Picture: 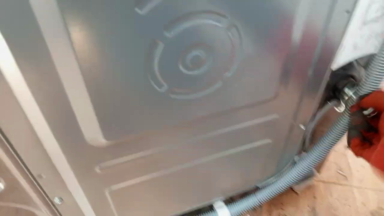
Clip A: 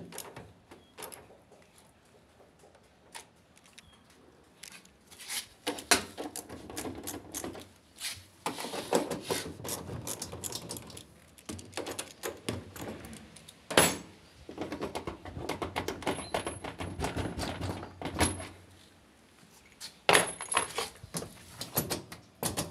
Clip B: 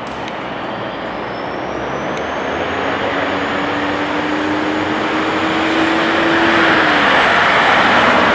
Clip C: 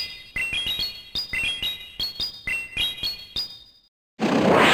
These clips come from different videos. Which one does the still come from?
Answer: A